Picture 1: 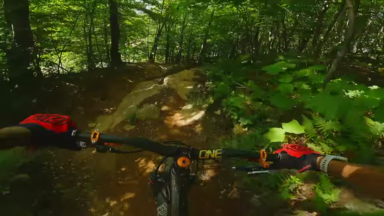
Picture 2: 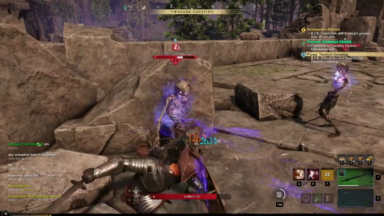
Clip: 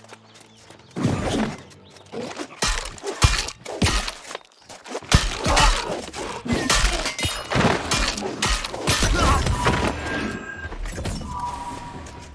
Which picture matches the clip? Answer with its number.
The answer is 2